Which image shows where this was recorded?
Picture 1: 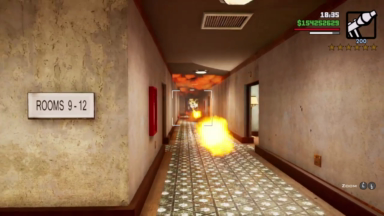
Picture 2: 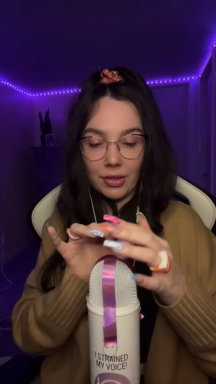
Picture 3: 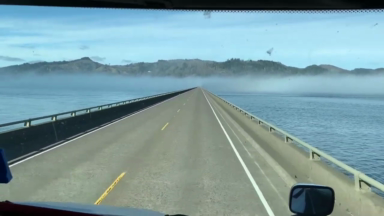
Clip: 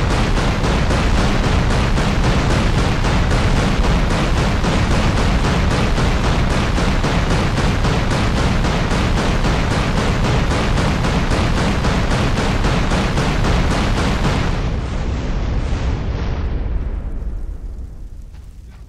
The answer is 1